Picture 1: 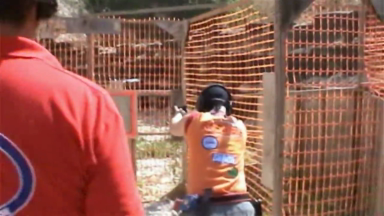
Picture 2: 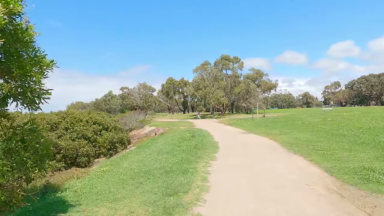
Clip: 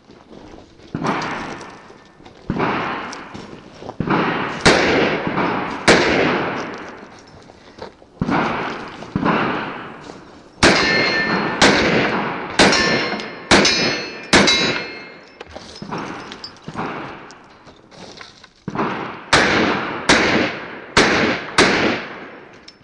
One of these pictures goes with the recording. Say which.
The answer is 1